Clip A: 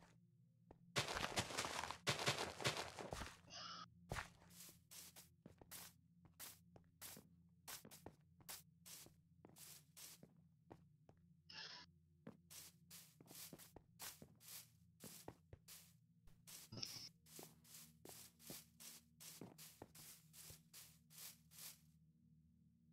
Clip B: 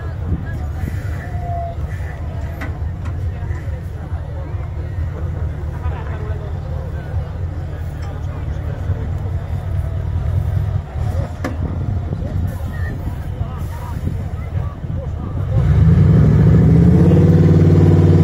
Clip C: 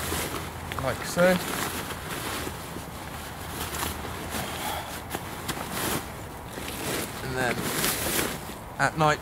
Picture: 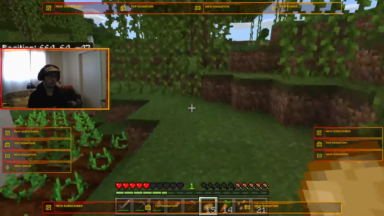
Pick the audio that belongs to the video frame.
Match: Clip A